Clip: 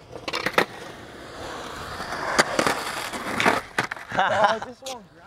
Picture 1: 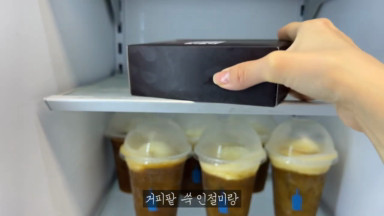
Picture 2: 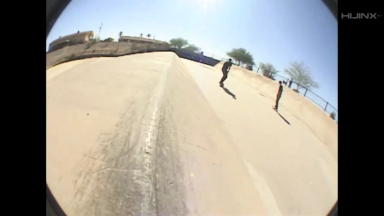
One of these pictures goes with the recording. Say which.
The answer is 2